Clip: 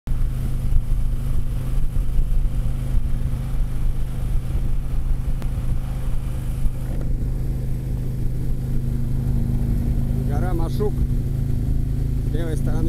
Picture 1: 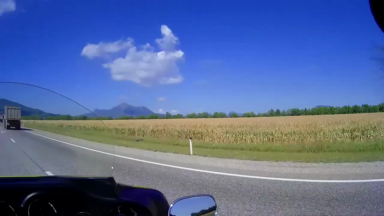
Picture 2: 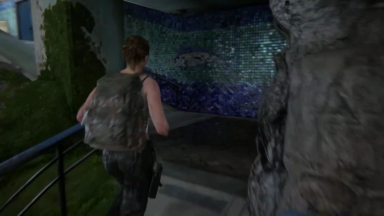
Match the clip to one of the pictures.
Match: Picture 1